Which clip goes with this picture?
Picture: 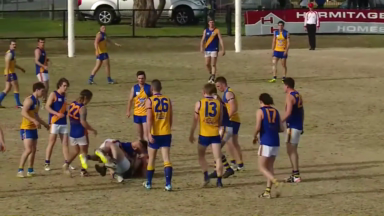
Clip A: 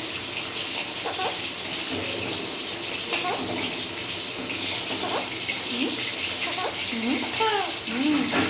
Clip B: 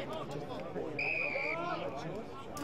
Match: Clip B